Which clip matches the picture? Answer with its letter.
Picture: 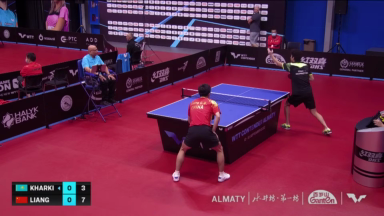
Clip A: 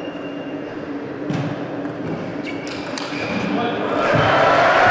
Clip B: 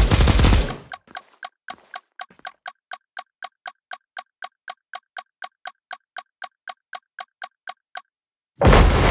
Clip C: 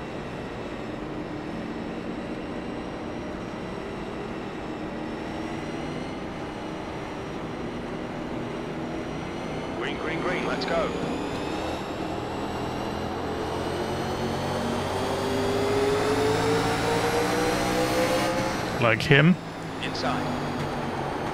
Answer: A